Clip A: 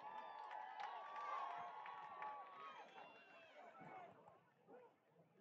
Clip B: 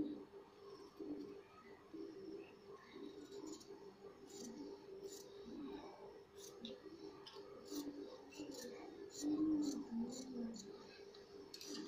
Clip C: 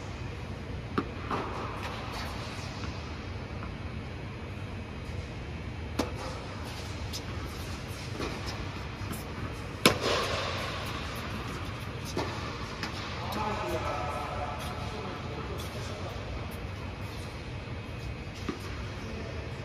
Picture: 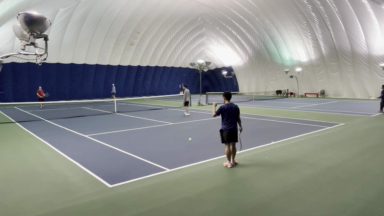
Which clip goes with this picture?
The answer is C